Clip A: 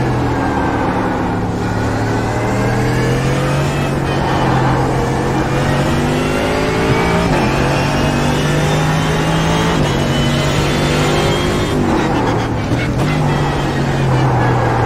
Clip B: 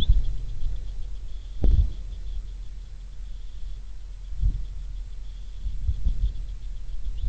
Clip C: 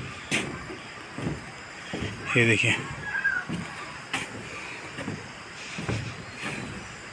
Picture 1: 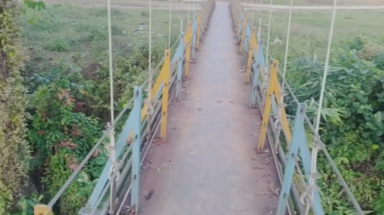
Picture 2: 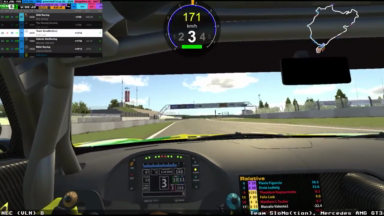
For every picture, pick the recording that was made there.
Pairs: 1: C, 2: A